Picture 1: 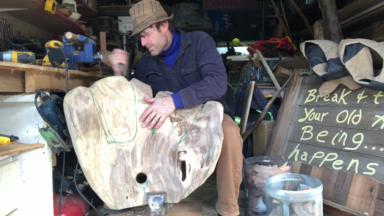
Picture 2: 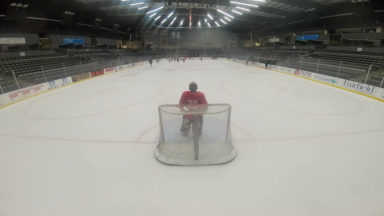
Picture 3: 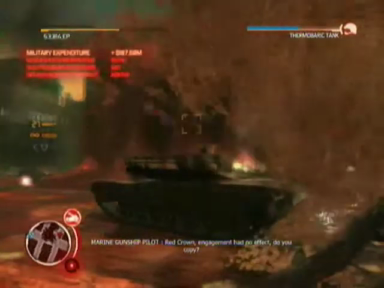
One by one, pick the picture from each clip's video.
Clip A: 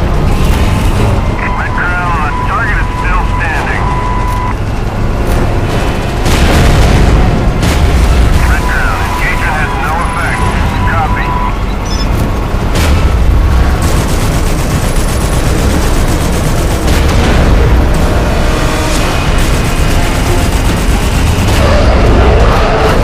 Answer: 3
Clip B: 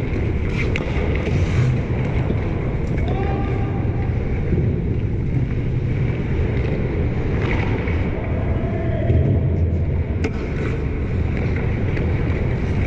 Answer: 2